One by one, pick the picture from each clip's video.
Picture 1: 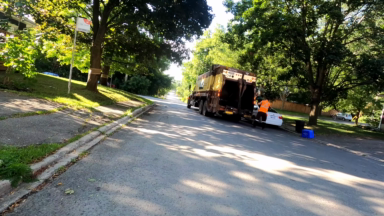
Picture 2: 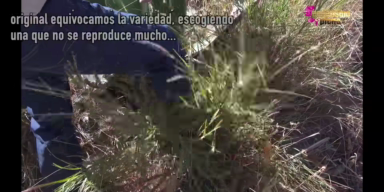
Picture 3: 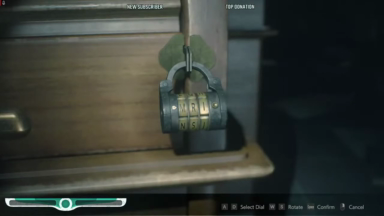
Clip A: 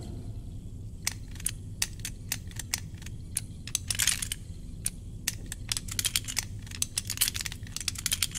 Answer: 3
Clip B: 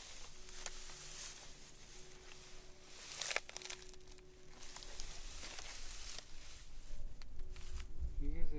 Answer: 2